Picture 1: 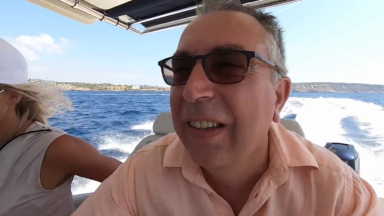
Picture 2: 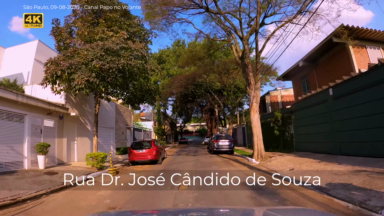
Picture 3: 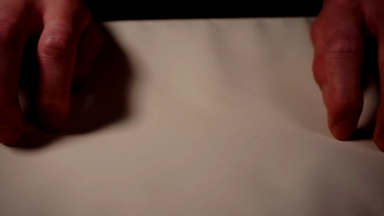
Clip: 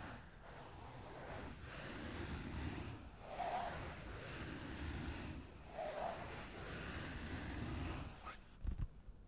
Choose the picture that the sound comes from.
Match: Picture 3